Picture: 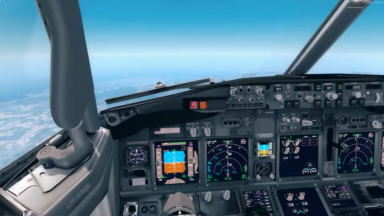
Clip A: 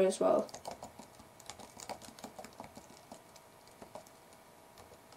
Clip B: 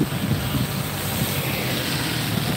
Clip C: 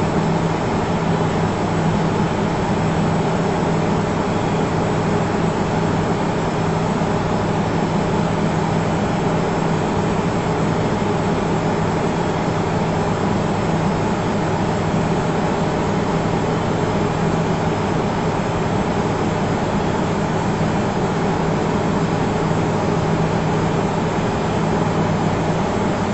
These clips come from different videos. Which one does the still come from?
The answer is C